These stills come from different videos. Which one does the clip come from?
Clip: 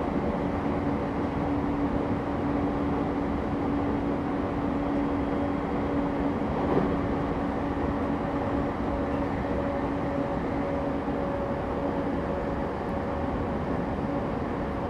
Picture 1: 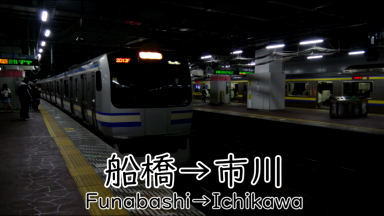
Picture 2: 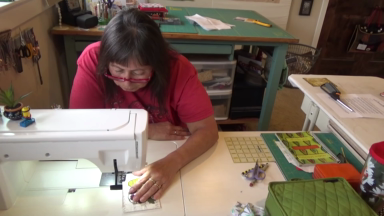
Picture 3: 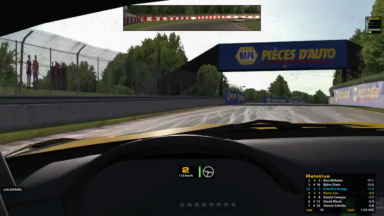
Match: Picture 1